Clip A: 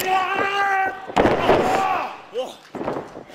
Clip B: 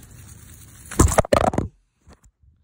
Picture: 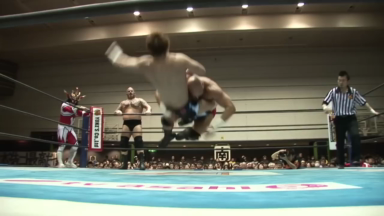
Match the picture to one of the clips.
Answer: A